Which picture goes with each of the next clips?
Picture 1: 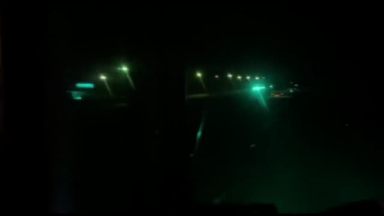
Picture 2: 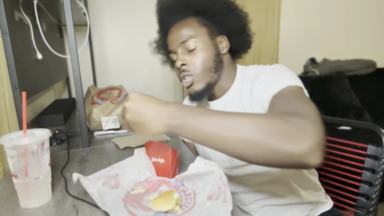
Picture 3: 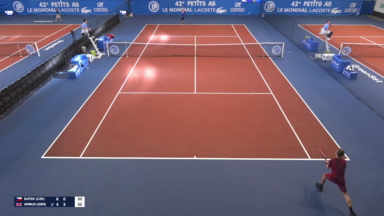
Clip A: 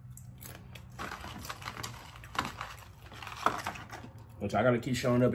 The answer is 2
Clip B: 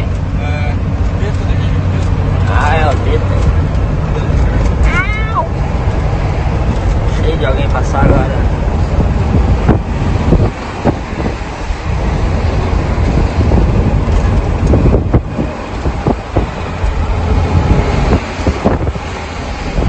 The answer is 1